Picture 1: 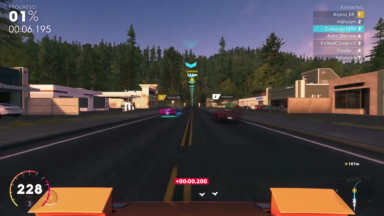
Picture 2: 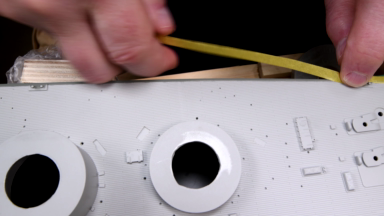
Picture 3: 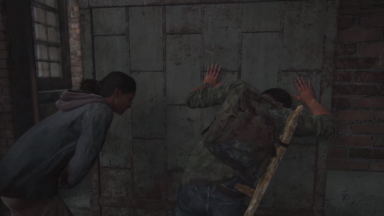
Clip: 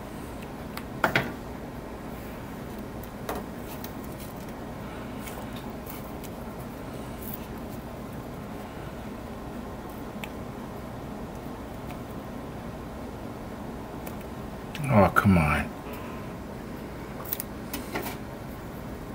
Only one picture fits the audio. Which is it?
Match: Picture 2